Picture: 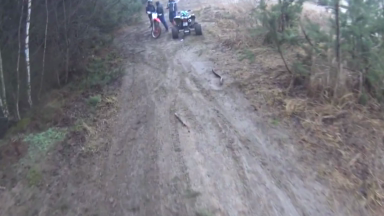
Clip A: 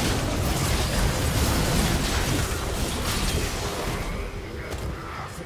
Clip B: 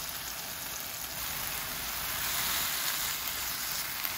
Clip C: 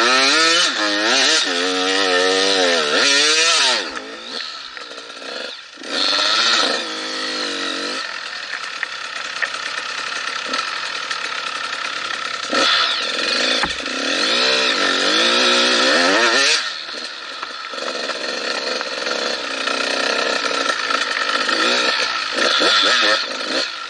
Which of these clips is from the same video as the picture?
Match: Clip C